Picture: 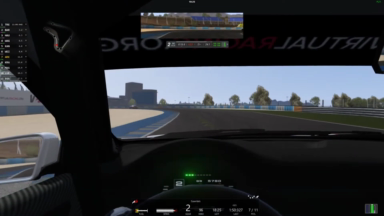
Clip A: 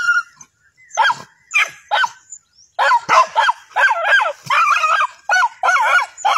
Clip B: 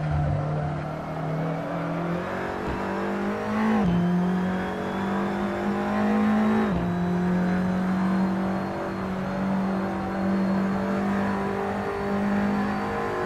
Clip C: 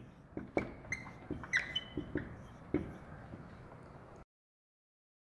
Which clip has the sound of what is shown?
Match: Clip B